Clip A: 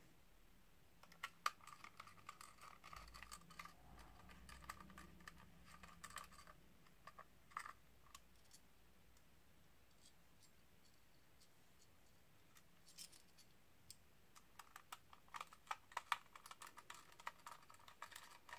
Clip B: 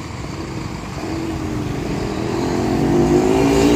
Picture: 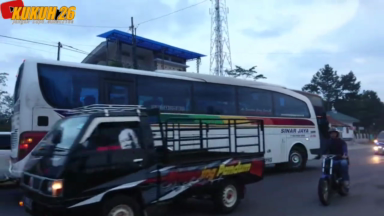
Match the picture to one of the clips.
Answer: B